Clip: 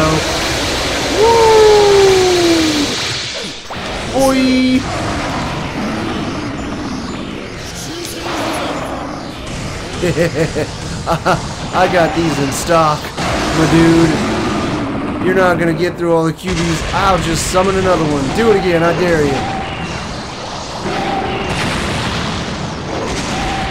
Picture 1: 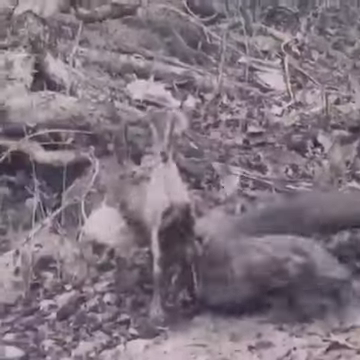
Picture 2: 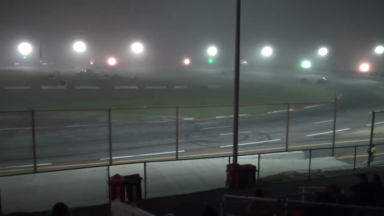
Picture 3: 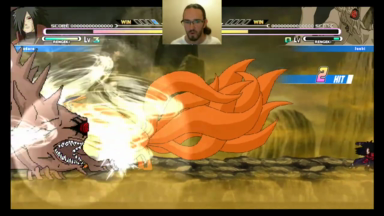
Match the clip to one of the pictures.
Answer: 3